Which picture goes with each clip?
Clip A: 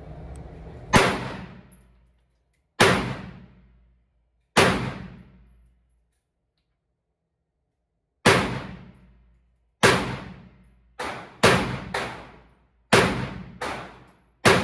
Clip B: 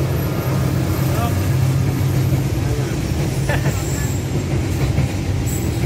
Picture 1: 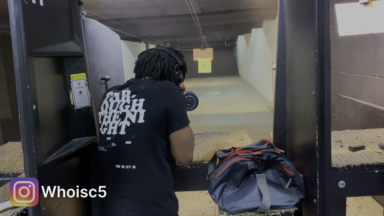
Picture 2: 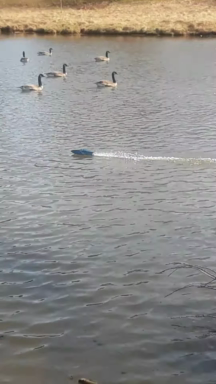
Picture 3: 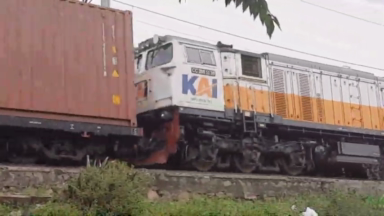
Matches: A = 1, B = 3